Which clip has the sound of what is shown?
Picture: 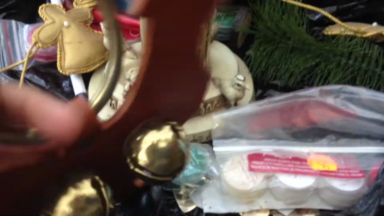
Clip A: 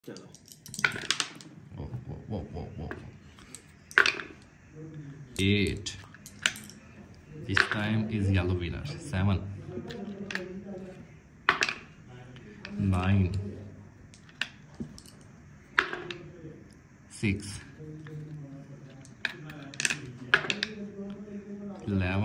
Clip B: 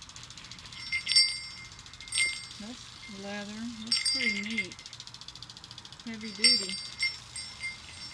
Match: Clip B